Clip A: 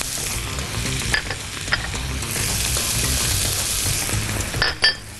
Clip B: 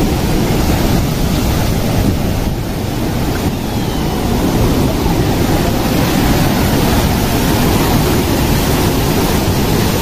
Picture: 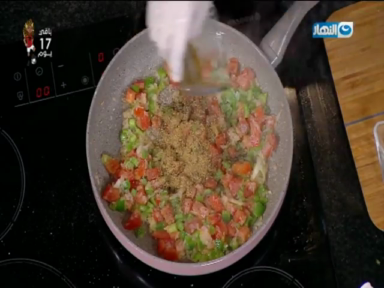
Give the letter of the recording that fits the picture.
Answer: A